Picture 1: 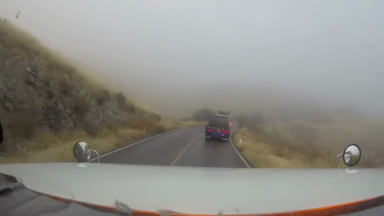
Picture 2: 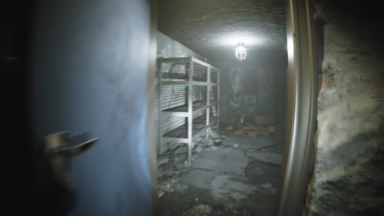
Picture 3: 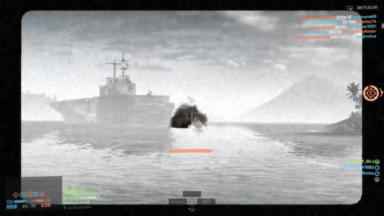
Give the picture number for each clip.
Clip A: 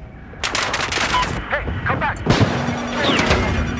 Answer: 3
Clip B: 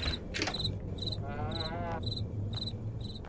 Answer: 2